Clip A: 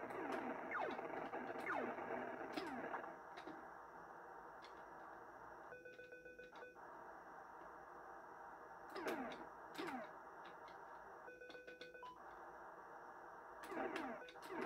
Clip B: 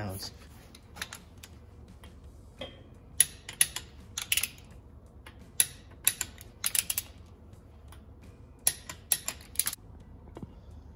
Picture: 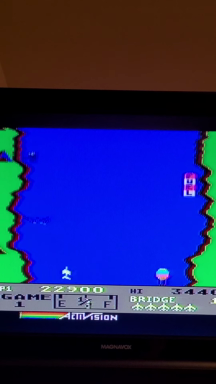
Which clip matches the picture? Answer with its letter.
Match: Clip A